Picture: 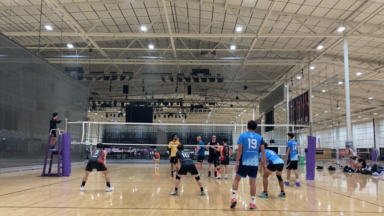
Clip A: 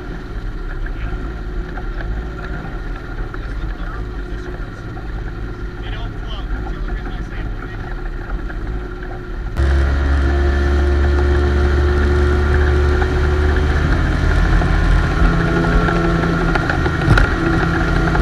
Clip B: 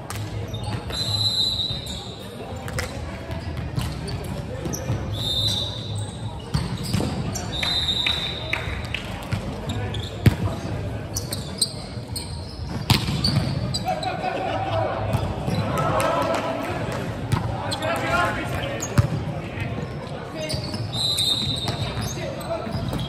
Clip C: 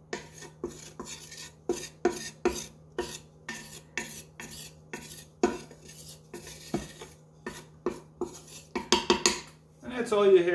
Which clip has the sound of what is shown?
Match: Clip B